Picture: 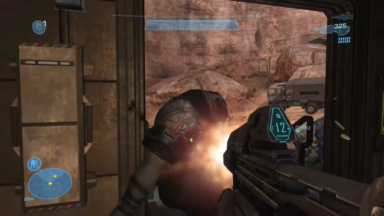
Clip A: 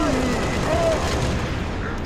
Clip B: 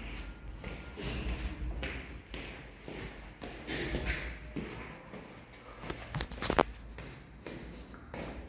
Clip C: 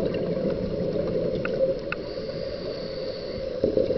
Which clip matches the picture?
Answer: A